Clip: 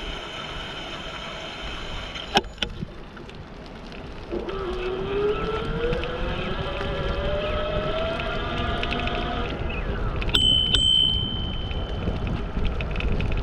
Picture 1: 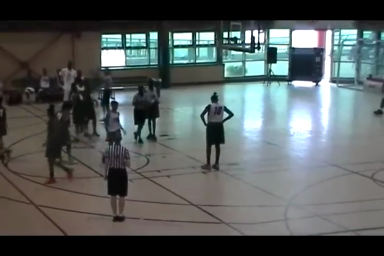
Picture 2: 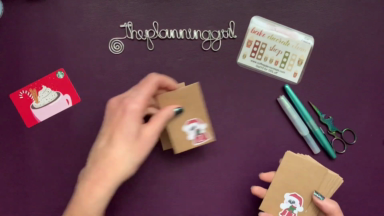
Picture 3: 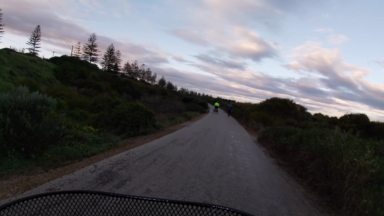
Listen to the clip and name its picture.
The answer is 3